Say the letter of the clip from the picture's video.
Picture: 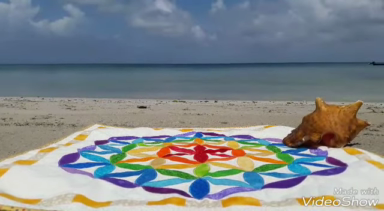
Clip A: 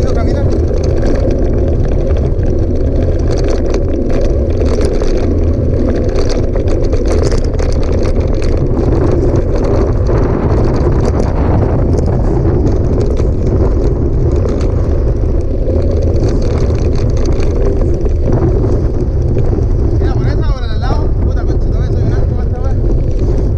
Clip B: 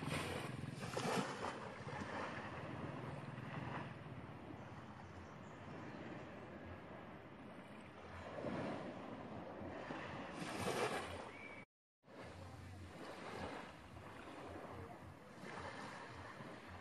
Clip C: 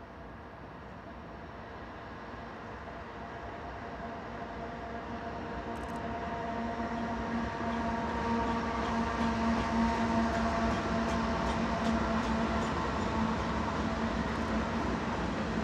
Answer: B